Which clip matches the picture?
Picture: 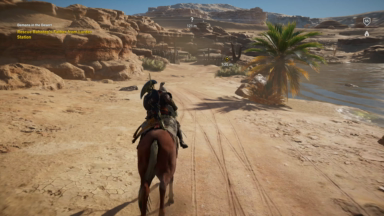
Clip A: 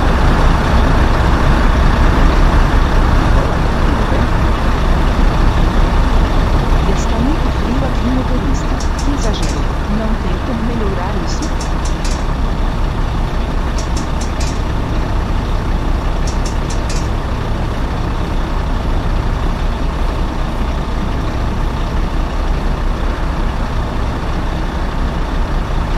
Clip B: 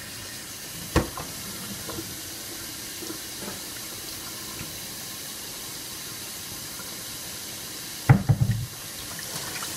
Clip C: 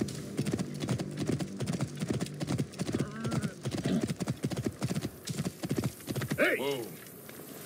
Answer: C